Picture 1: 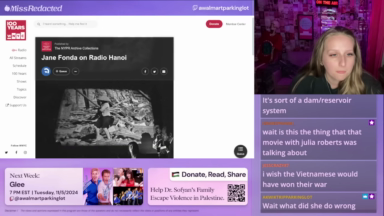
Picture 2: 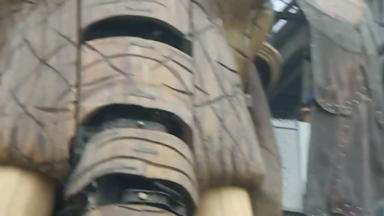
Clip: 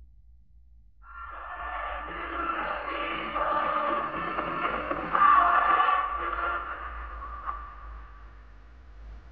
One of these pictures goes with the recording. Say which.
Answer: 1